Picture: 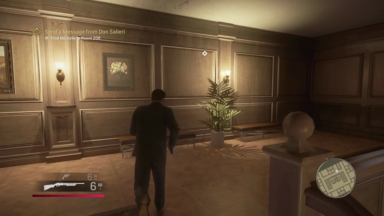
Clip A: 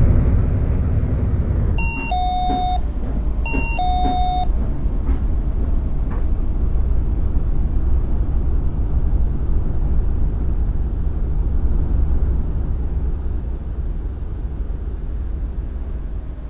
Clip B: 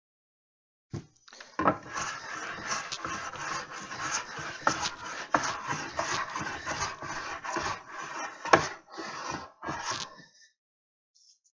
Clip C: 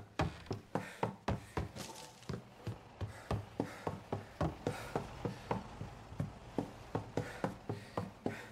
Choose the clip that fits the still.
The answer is C